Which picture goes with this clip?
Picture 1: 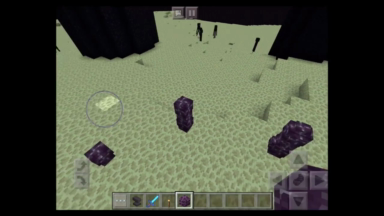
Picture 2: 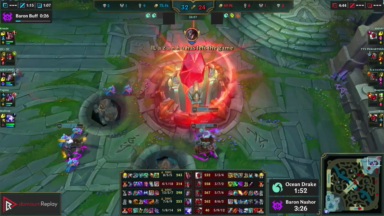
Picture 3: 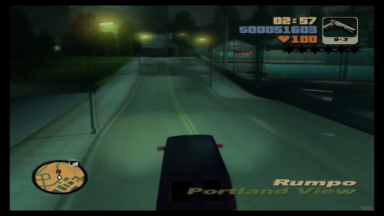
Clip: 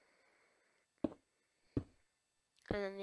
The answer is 1